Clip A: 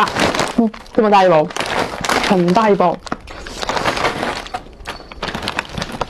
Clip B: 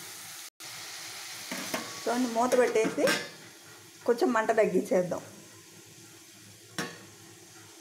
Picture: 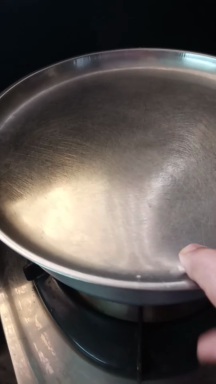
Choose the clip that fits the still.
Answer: B